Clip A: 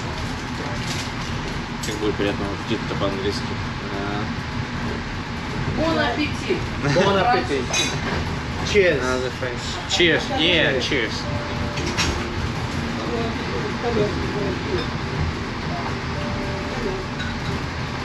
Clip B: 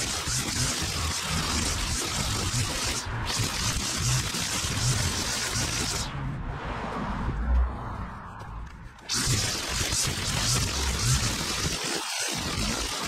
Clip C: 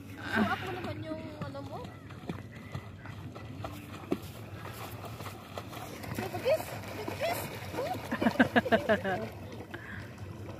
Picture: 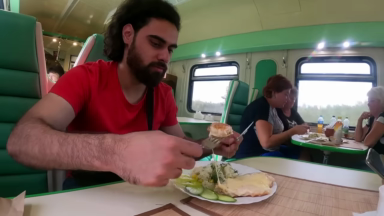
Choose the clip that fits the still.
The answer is A